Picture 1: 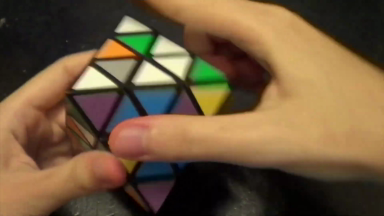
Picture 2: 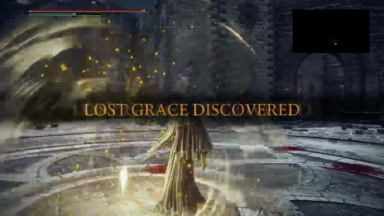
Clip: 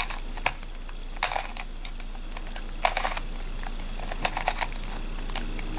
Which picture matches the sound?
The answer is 1